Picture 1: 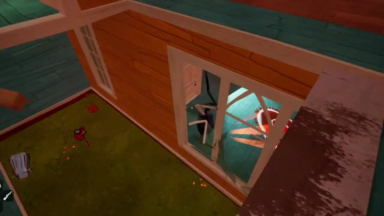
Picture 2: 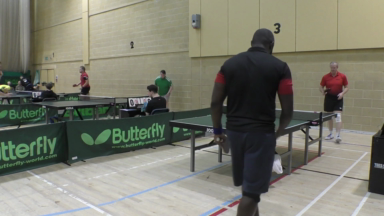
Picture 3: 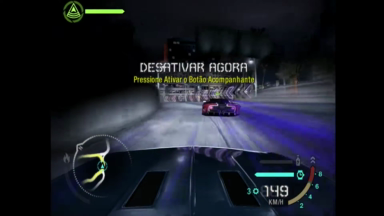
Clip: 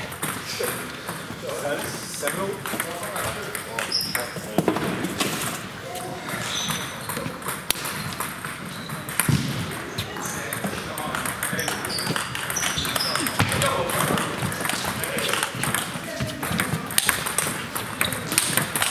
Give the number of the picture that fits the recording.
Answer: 2